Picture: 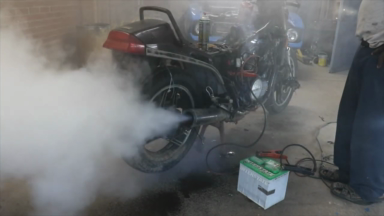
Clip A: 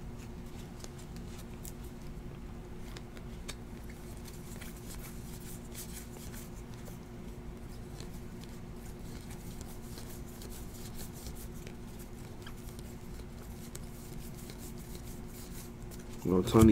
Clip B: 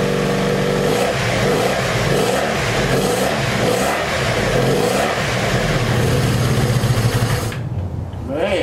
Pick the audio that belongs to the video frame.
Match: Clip B